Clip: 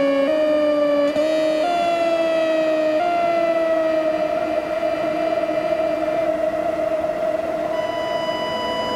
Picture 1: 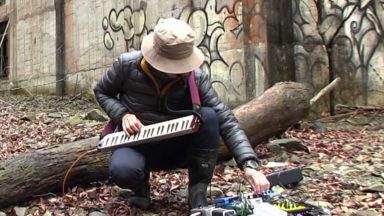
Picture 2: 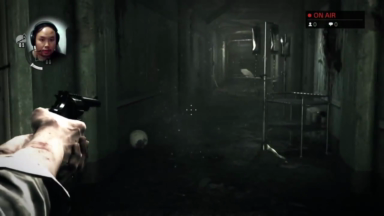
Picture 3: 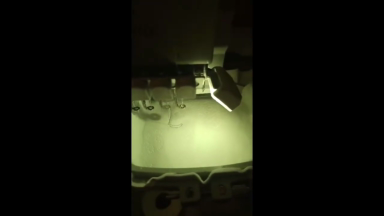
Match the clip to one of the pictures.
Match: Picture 1